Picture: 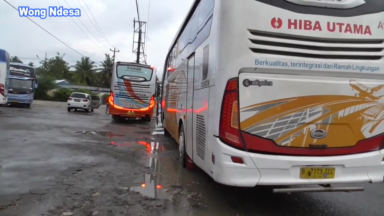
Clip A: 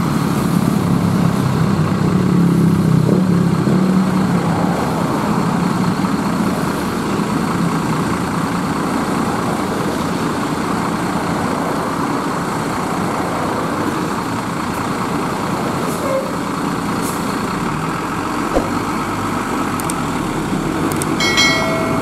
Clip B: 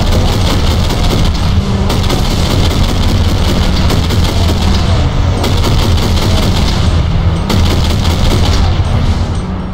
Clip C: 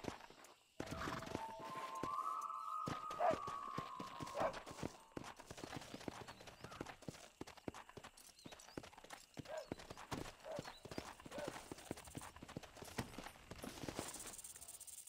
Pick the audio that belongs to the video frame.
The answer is A